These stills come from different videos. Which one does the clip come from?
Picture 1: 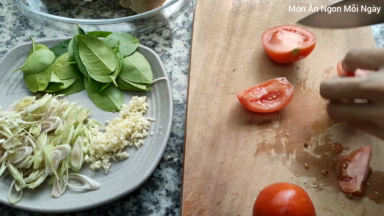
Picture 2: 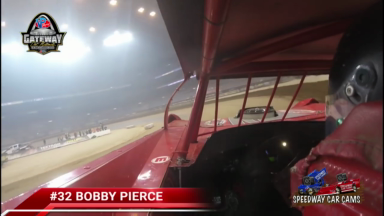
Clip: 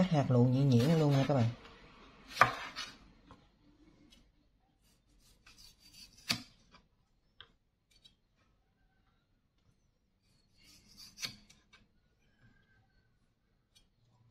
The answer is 1